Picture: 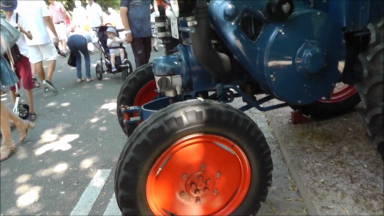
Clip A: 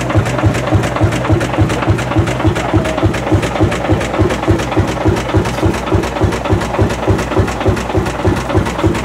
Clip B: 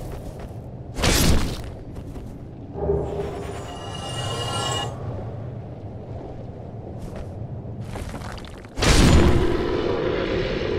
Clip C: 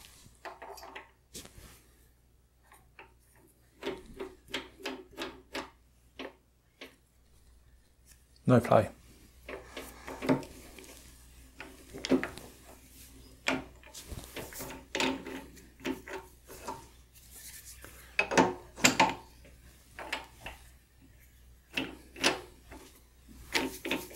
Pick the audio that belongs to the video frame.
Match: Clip A